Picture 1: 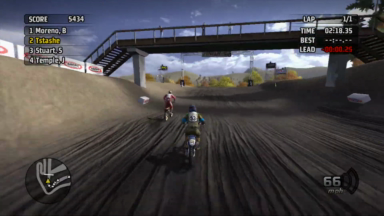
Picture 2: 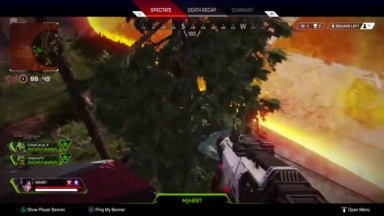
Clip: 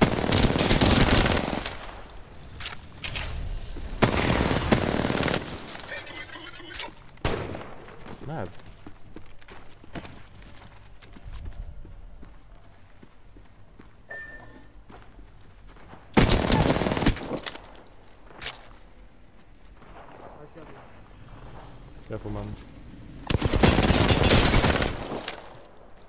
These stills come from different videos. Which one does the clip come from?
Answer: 2